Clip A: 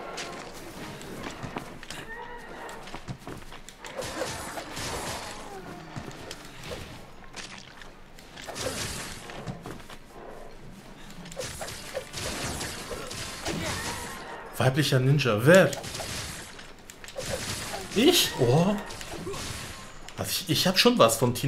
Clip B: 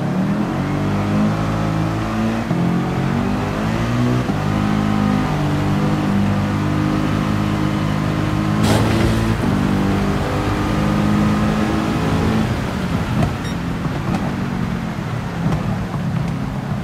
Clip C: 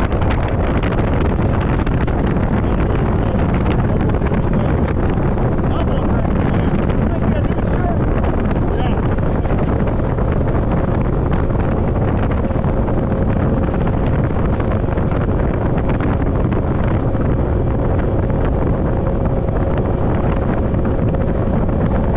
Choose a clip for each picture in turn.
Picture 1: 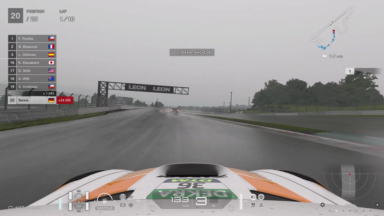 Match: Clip B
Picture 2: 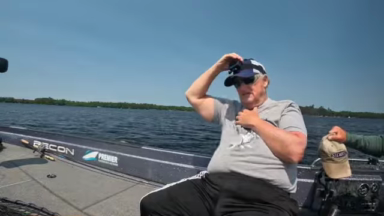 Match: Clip C